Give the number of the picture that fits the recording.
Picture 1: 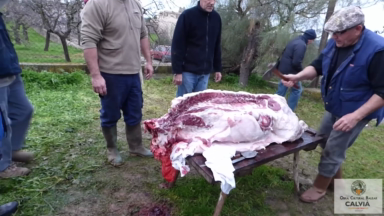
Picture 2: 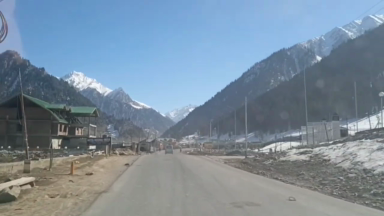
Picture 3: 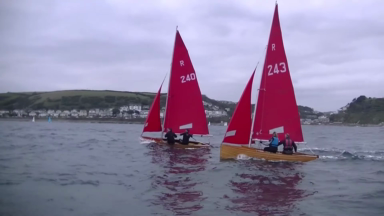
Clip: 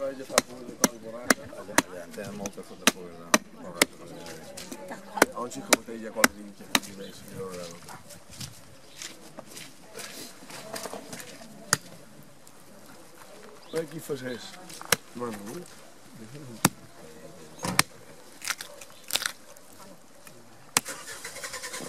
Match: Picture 1